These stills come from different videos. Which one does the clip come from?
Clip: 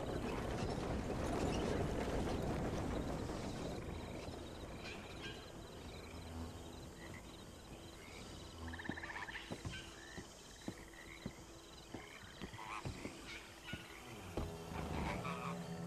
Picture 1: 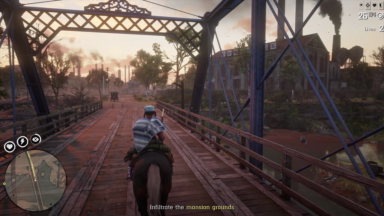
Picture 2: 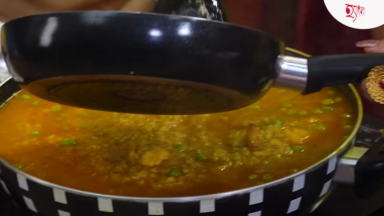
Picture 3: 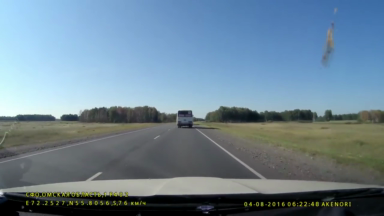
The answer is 1